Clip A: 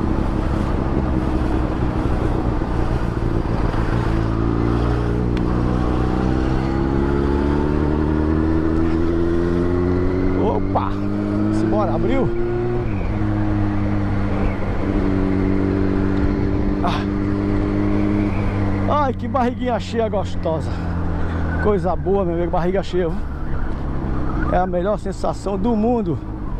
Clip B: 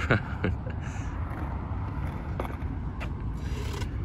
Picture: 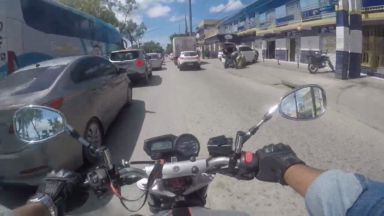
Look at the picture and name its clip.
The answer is A